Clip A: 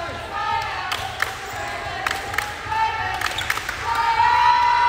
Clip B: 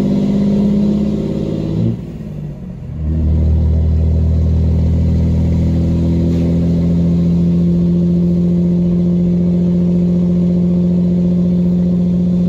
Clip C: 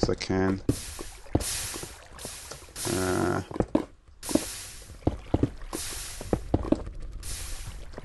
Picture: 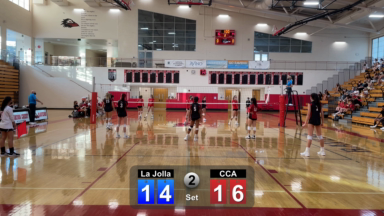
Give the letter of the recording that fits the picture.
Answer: A